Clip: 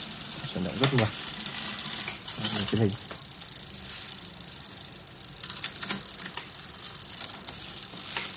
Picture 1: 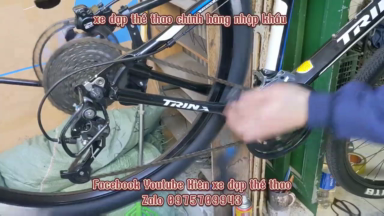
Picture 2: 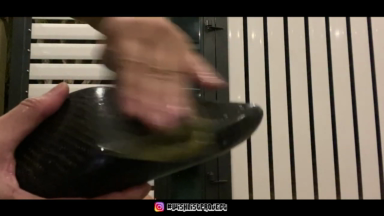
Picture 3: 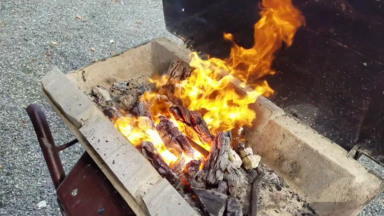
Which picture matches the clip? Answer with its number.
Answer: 1